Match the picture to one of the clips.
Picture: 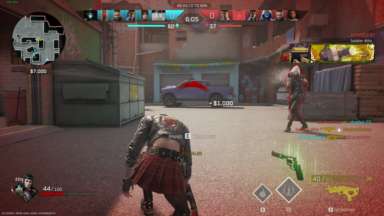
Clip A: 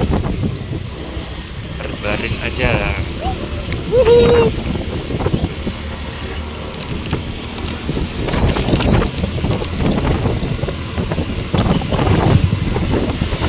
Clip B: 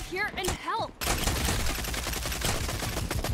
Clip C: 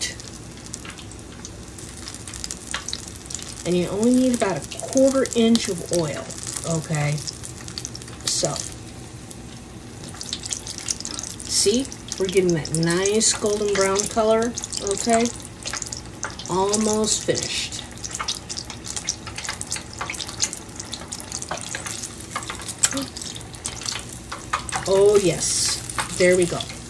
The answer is B